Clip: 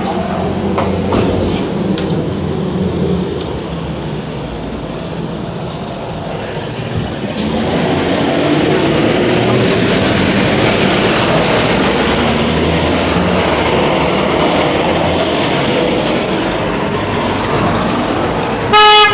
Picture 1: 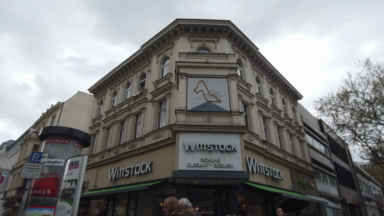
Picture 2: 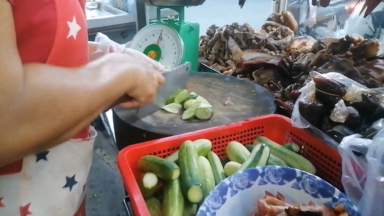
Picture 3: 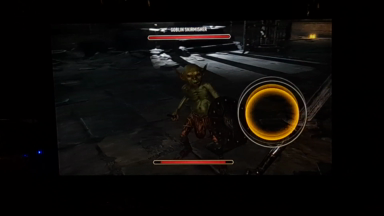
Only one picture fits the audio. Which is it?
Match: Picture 1